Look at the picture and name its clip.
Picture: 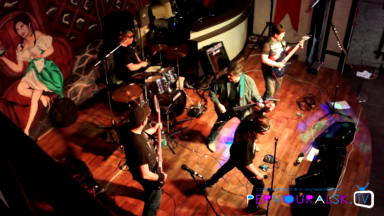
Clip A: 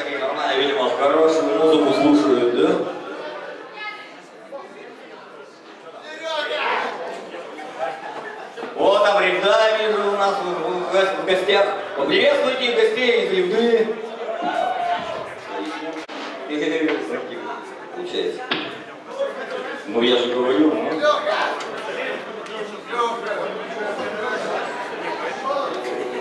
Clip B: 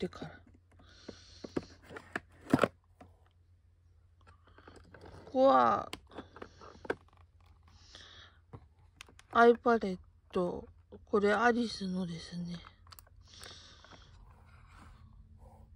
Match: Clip A